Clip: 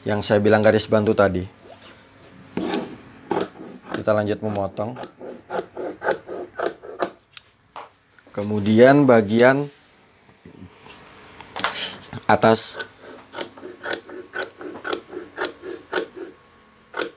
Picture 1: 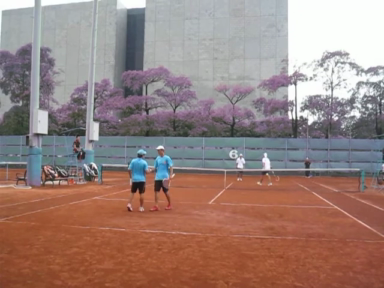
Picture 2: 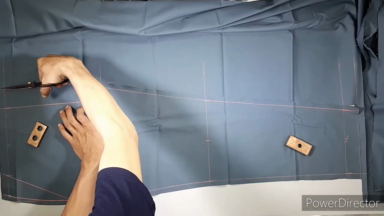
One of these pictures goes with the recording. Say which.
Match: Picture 2